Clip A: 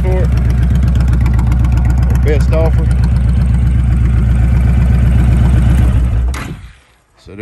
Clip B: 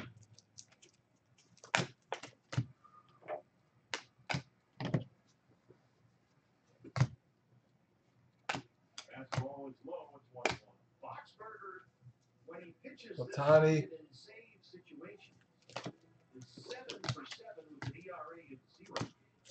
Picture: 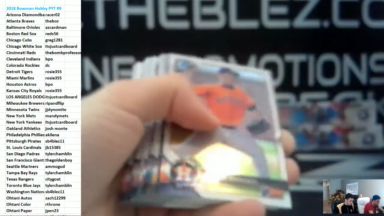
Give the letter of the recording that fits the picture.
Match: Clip B